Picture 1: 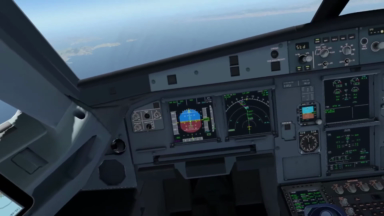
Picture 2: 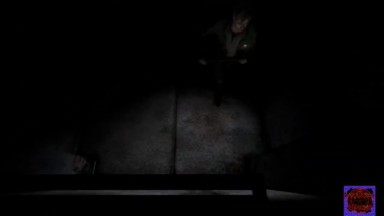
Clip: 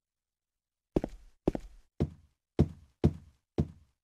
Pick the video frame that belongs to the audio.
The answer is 2